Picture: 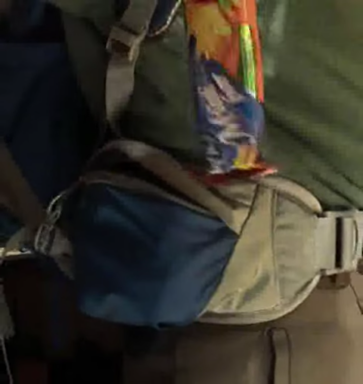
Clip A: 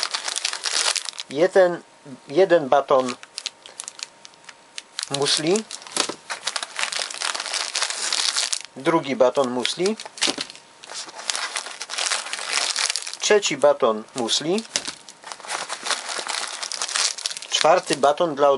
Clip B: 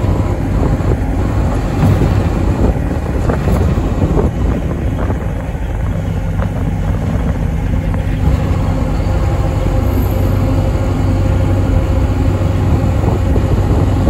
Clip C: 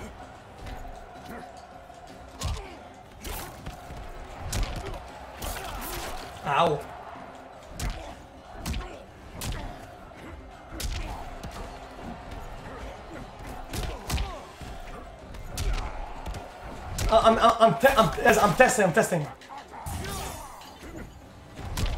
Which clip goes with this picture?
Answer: A